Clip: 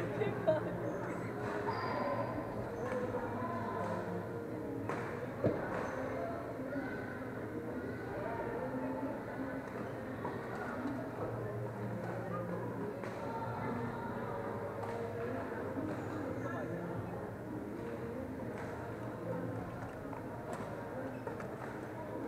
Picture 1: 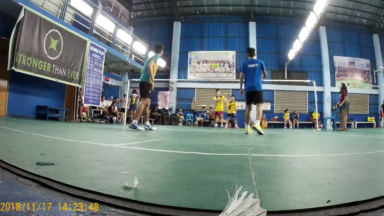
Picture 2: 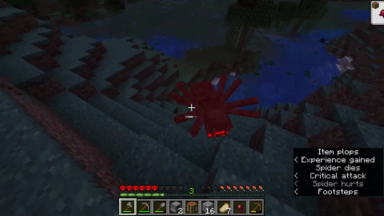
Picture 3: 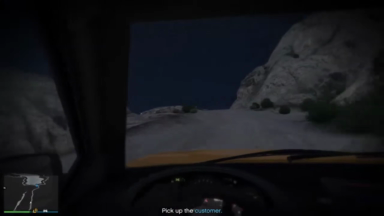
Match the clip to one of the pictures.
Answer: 1